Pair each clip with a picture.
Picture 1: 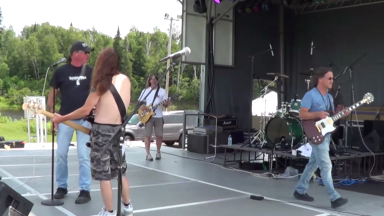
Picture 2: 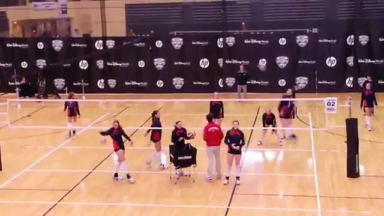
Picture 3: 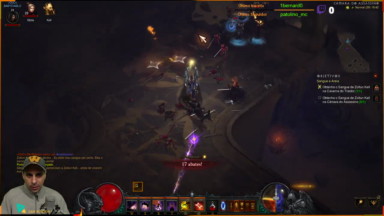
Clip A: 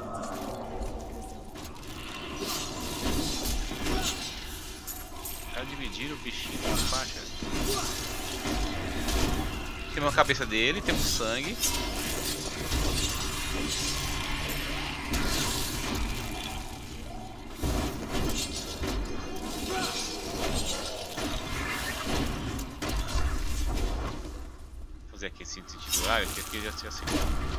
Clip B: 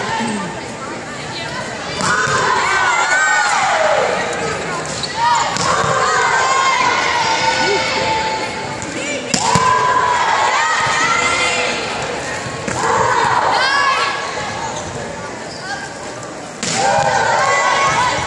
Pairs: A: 3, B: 2